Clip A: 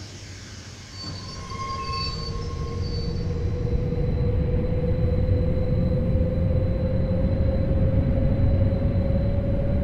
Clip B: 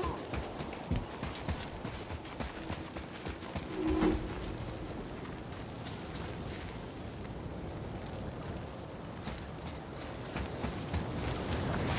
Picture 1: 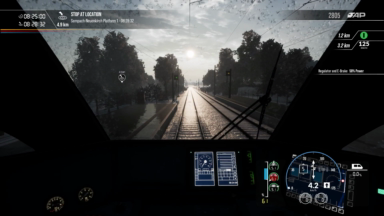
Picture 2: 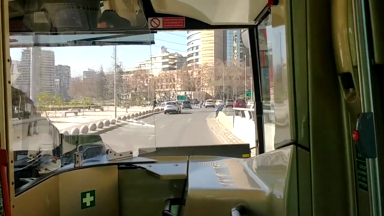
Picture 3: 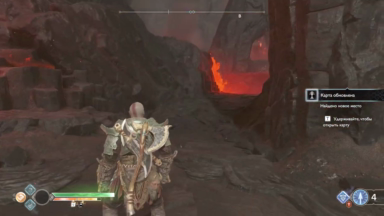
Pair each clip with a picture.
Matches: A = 1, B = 3